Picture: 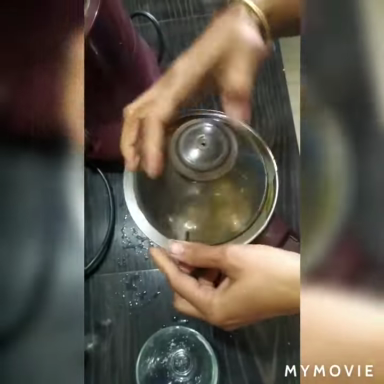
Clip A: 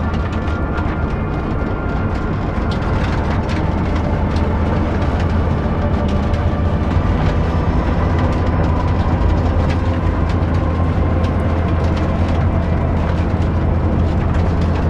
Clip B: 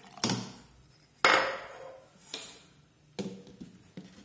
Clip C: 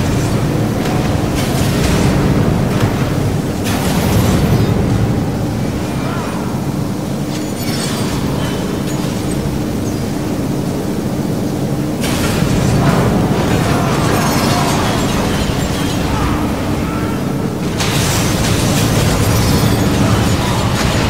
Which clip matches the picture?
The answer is B